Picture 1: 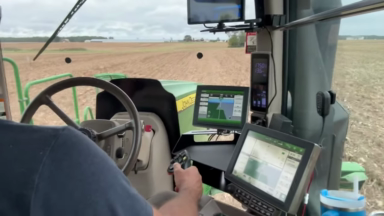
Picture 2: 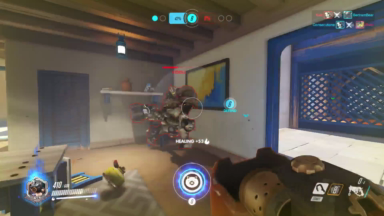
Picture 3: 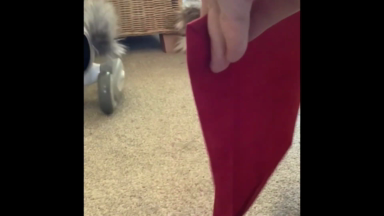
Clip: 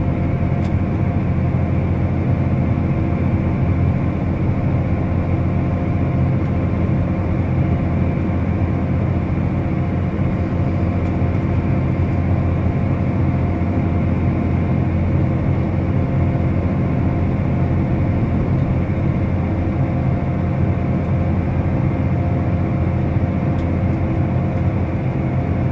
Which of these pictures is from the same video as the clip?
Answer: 1